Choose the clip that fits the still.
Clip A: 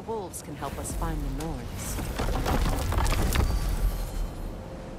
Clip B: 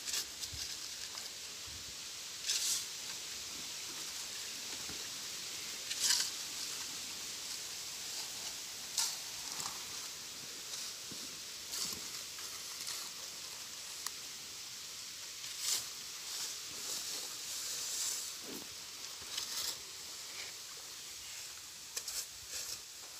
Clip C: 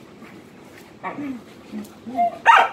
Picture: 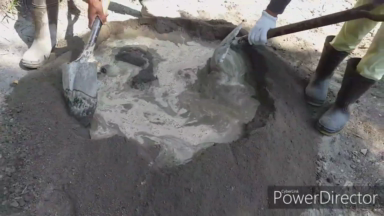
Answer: B